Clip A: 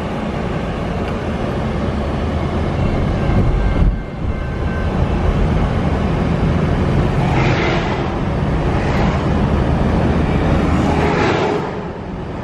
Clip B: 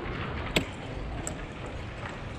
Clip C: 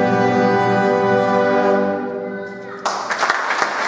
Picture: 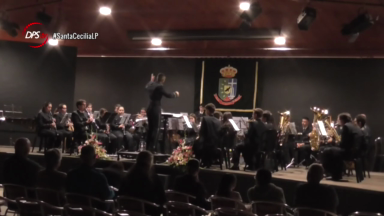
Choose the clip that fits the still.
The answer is C